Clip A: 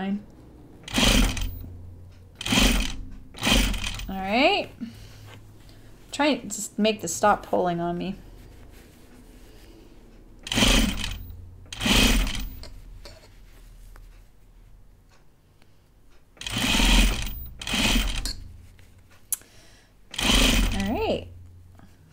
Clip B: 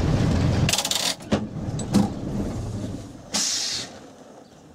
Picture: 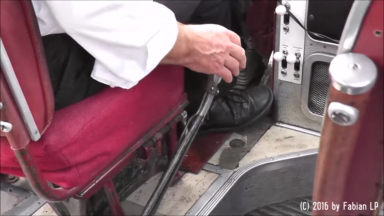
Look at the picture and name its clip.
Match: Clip B